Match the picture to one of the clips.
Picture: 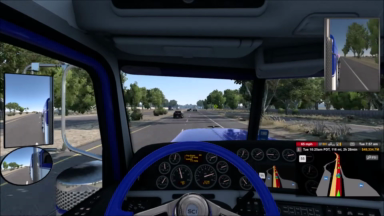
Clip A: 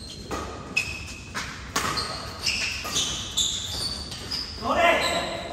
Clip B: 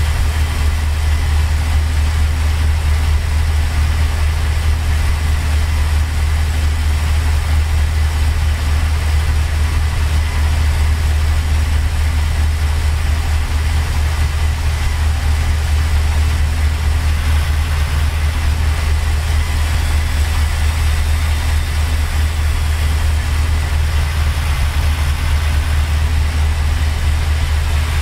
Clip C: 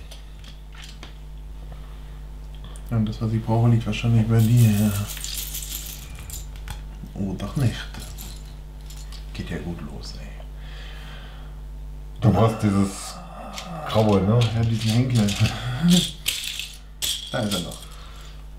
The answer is B